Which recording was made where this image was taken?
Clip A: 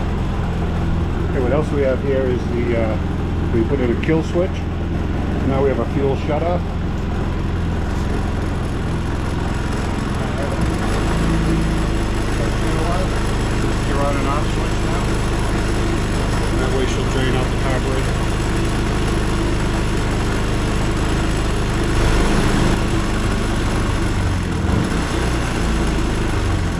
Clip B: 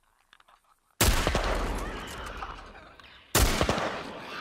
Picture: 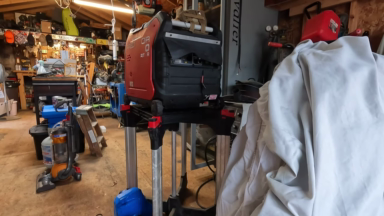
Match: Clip A